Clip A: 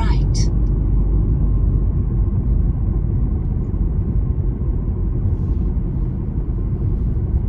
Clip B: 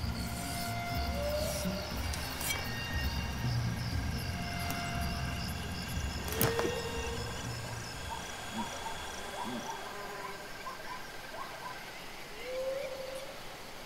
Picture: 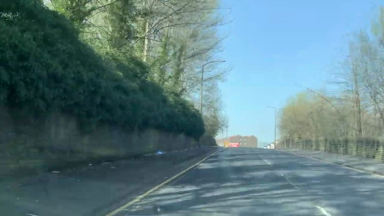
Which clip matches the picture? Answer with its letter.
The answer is A